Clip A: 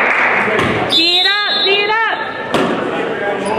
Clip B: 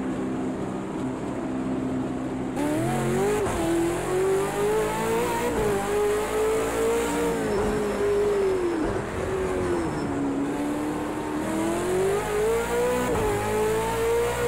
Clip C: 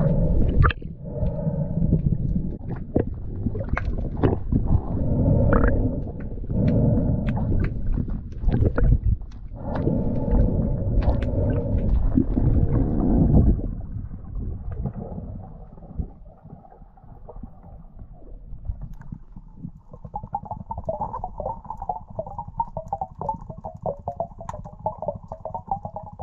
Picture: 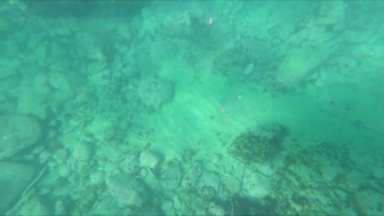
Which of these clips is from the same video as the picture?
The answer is C